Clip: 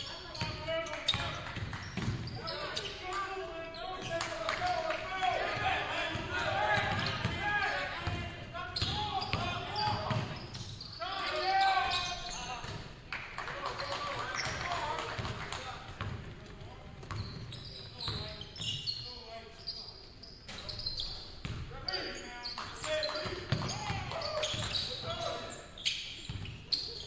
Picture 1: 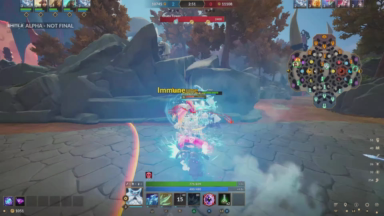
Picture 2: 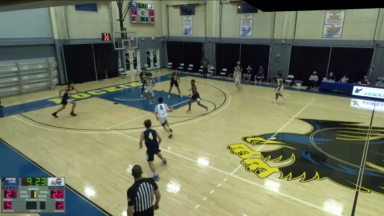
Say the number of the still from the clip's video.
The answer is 2